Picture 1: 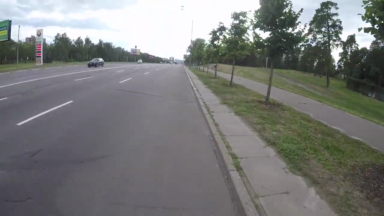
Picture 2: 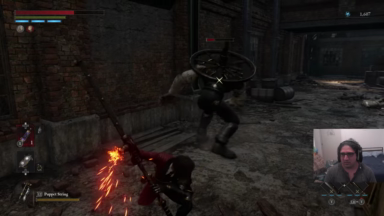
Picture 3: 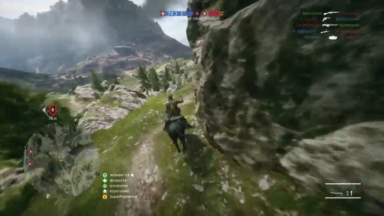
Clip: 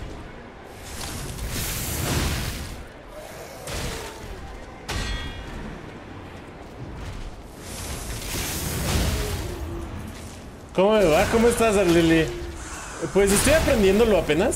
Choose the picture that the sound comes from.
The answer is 2